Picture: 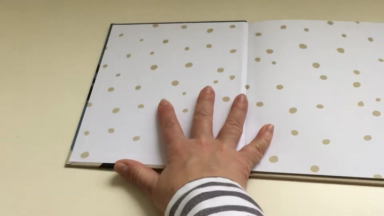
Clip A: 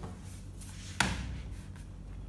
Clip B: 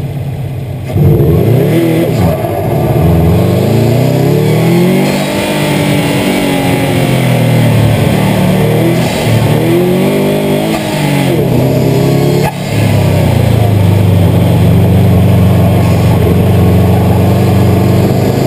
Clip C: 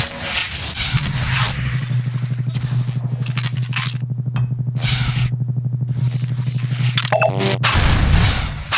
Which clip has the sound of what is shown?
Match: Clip A